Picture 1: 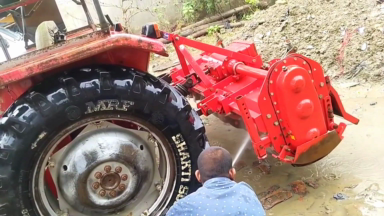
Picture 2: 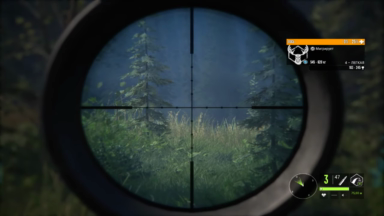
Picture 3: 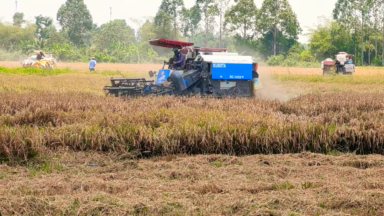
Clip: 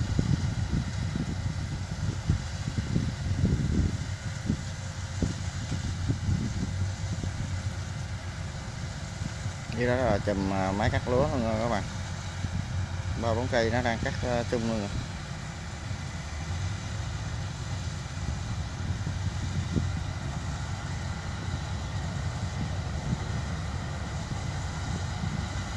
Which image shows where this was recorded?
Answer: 3